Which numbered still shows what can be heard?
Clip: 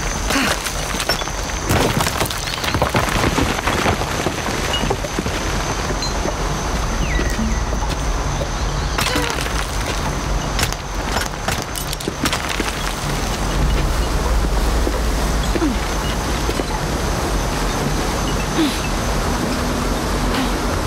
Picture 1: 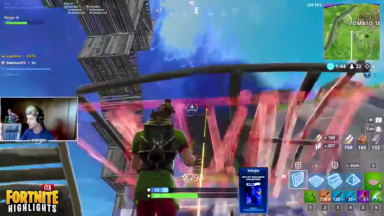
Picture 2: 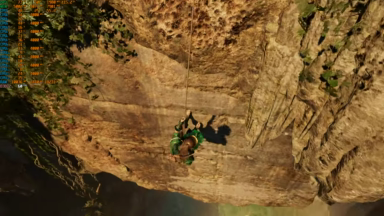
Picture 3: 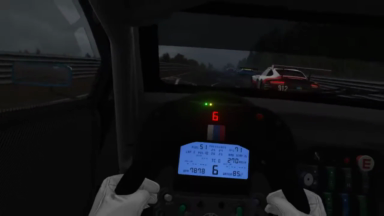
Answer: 2